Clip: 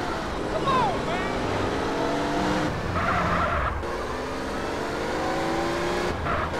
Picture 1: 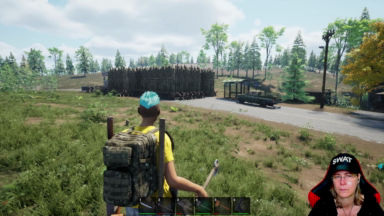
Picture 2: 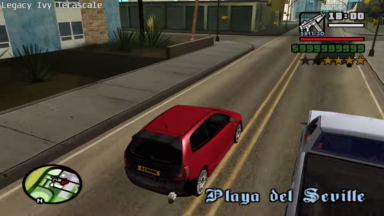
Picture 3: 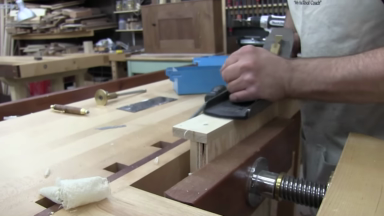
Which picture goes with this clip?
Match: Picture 2